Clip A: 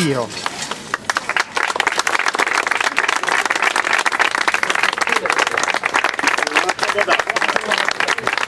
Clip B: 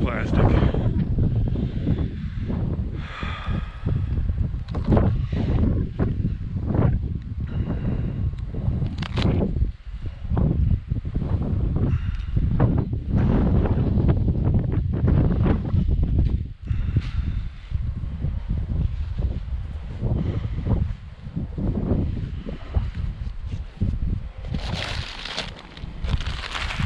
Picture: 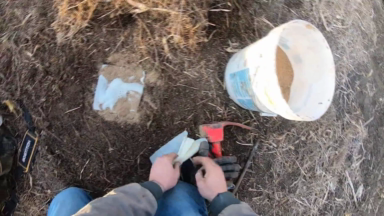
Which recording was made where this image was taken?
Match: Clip B